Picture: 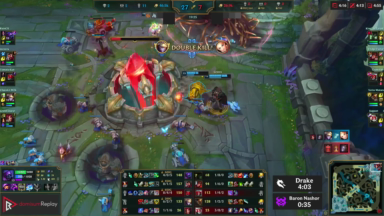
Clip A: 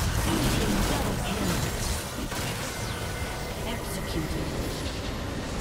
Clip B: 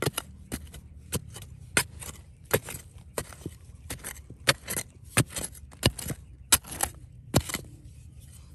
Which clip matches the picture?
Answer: A